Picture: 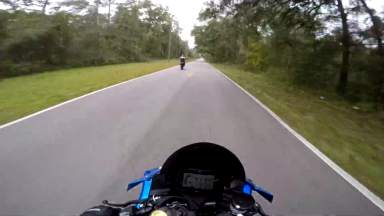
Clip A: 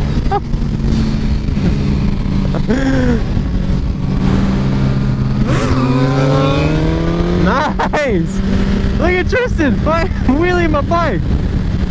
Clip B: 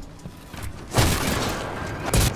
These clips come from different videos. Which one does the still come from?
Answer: A